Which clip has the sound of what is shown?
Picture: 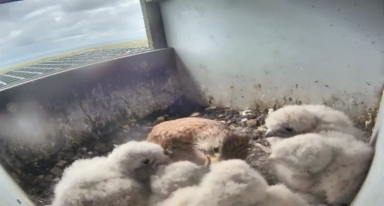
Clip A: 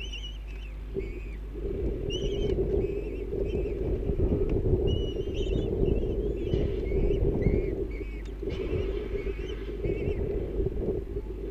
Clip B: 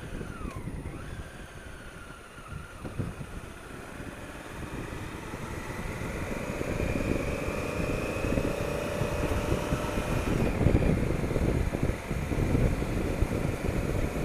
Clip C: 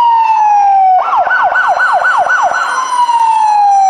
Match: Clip A